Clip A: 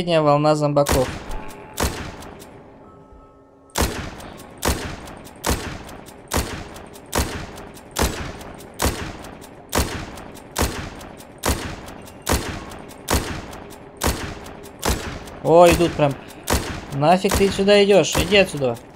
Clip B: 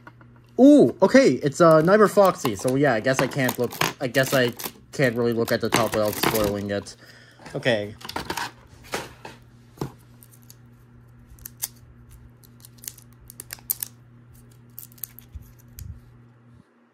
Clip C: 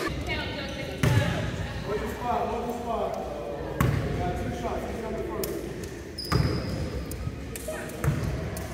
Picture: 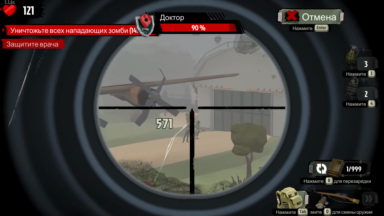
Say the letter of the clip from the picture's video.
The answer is A